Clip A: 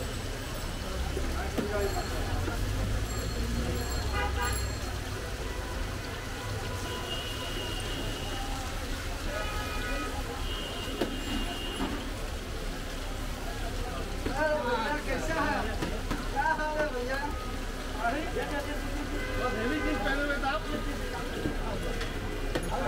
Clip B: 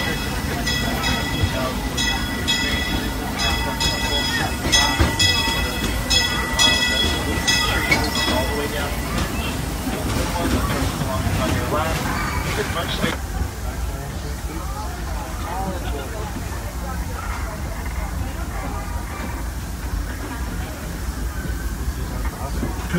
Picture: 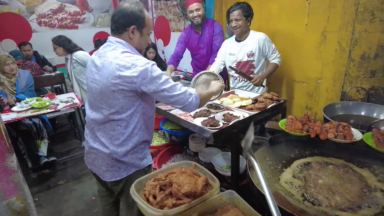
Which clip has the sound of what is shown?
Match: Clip A